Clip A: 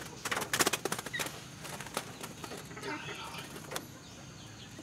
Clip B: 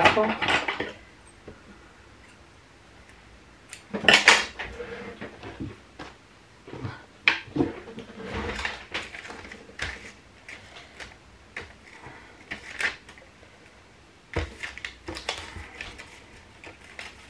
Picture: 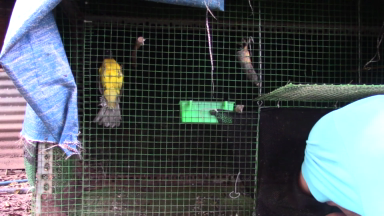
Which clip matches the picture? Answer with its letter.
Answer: A